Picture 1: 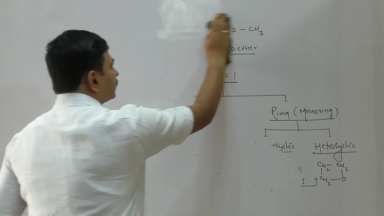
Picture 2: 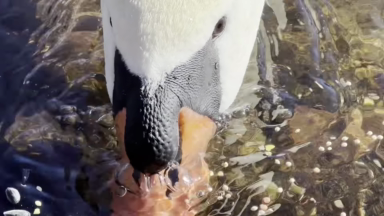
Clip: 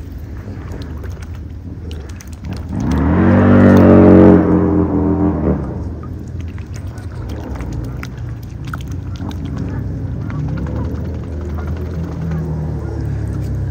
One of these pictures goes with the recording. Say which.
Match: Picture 2